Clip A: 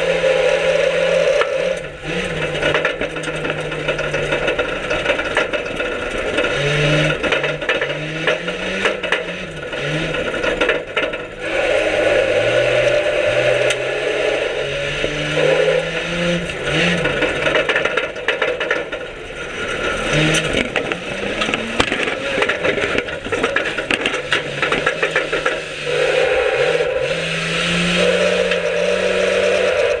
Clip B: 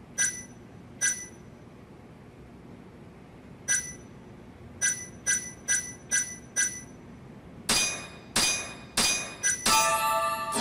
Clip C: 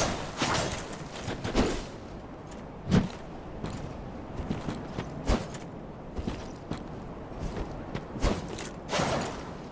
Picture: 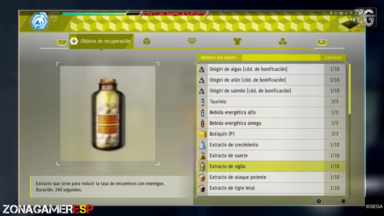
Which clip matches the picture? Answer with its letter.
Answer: B